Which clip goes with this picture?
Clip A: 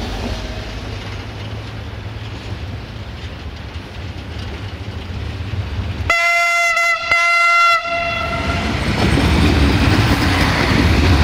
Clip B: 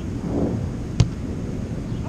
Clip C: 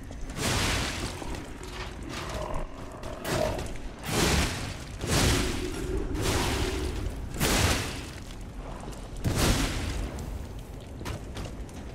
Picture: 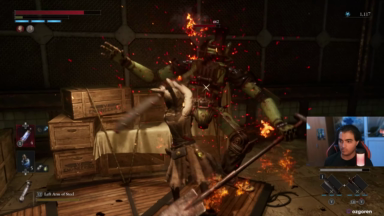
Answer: C